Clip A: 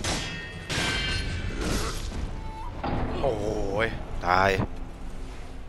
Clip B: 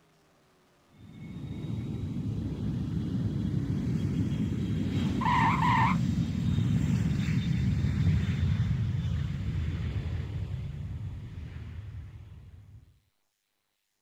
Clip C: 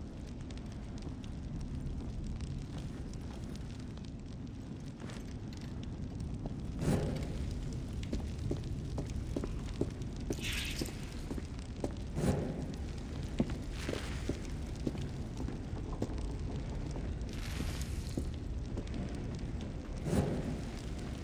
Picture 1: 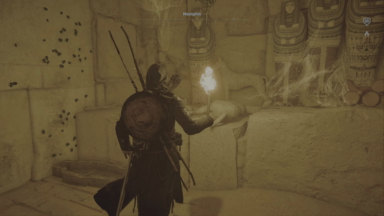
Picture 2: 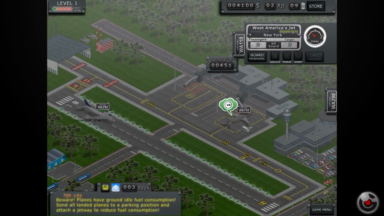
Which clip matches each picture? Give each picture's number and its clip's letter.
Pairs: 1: C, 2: B